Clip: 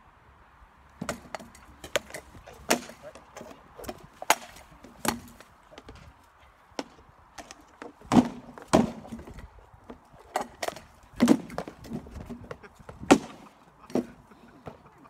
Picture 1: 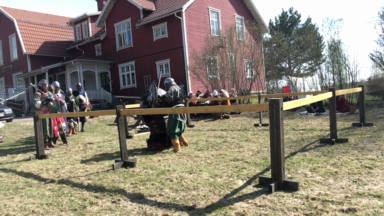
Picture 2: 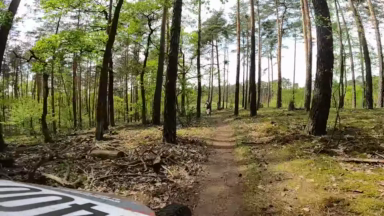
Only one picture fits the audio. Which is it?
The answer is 1